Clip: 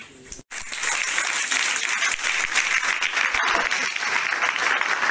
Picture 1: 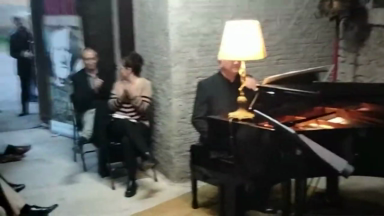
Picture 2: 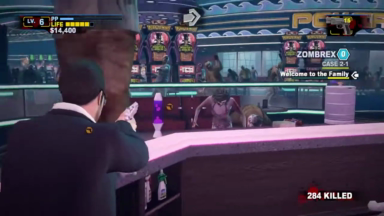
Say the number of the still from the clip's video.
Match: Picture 1